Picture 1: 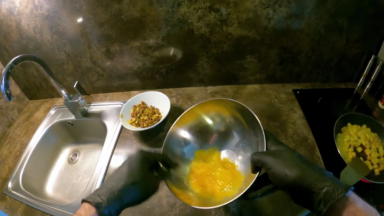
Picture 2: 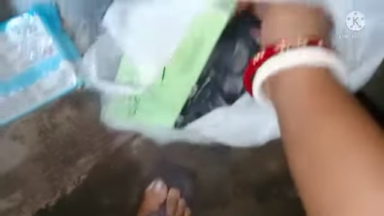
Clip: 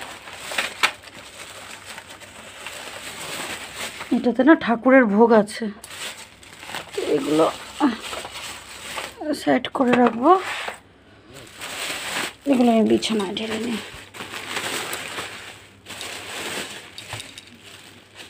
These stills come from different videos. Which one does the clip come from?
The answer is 2